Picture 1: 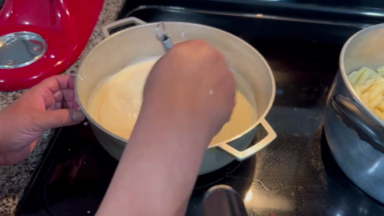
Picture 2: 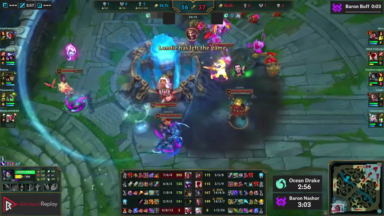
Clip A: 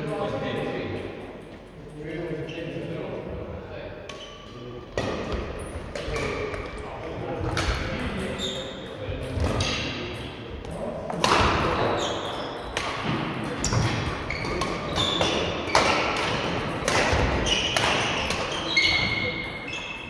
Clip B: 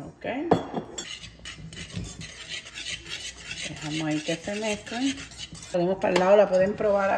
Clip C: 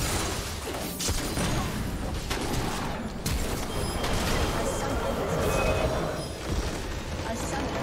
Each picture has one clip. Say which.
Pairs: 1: B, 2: C